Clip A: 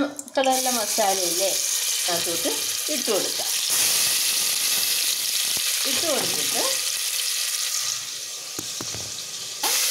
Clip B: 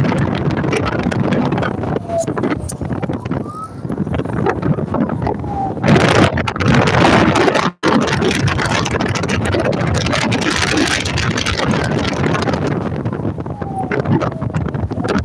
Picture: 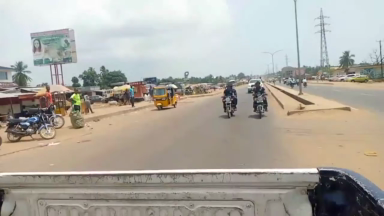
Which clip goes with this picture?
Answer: B